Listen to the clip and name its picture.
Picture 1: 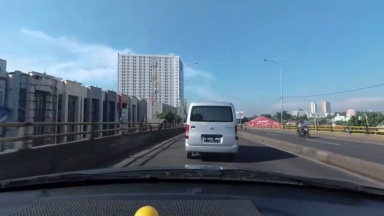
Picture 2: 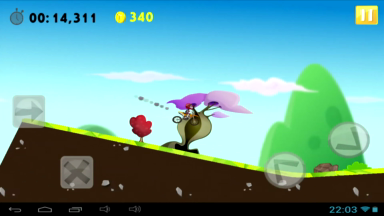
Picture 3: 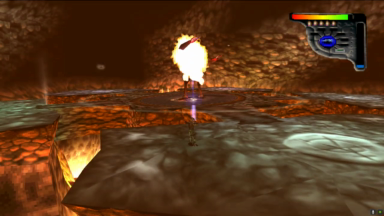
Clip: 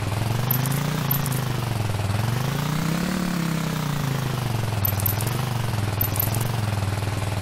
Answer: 2